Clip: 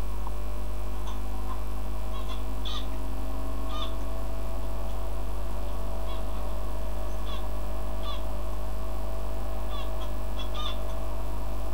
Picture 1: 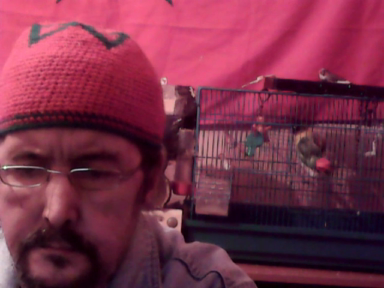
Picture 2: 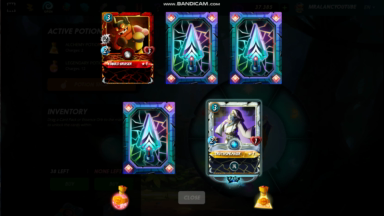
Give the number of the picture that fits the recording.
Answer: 1